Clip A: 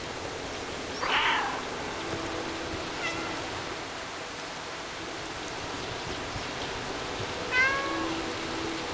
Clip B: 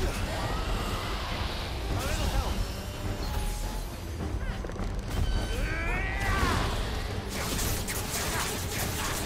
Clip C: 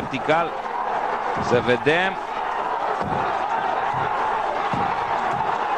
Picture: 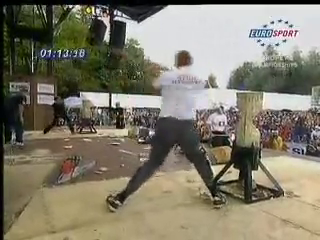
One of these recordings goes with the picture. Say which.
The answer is C